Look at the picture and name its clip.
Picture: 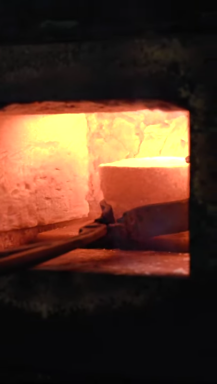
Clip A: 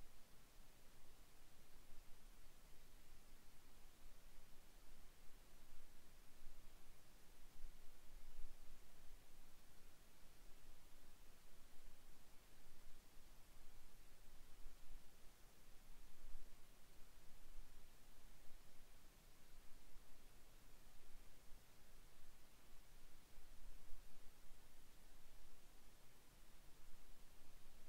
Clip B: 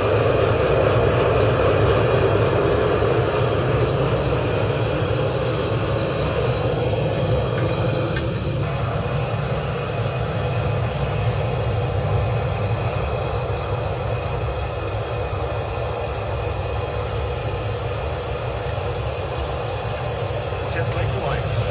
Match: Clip B